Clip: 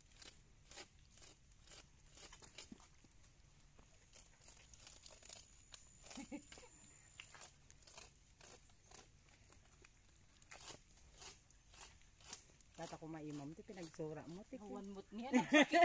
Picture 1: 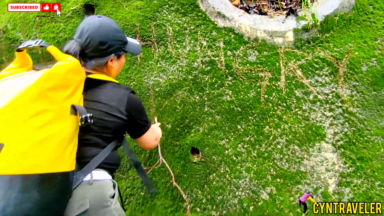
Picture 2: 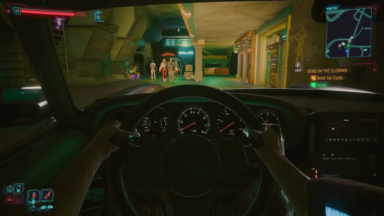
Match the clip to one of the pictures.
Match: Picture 1